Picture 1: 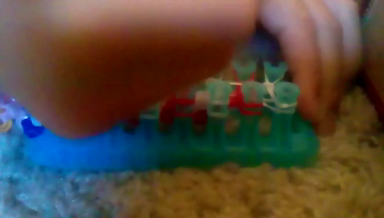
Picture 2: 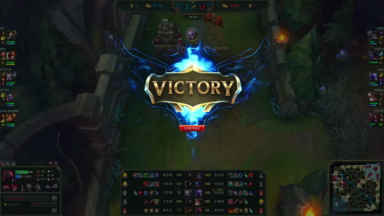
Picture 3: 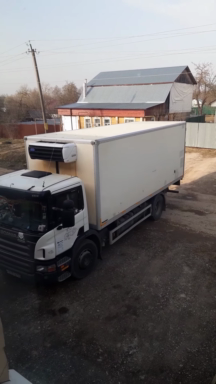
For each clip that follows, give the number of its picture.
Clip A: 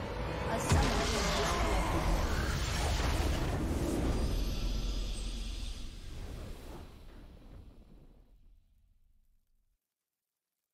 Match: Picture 2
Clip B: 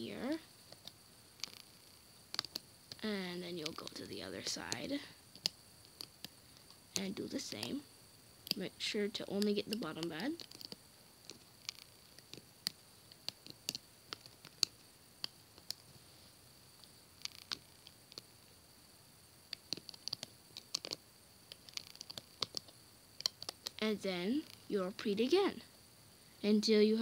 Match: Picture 1